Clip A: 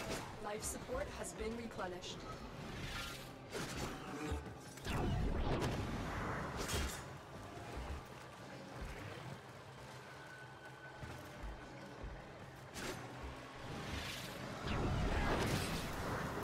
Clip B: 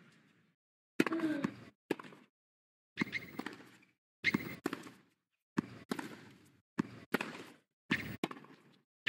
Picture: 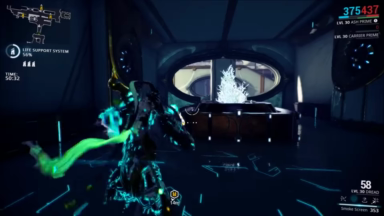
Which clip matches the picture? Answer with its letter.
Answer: A